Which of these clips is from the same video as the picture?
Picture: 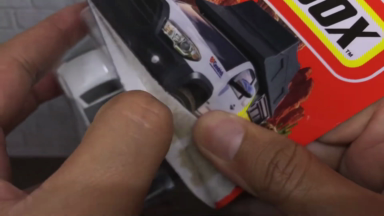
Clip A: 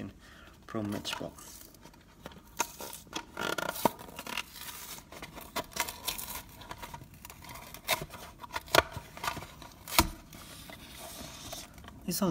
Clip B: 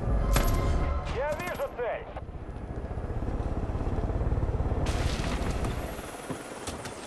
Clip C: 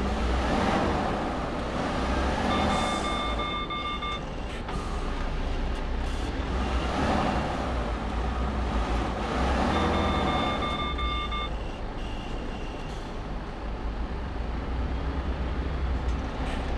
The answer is A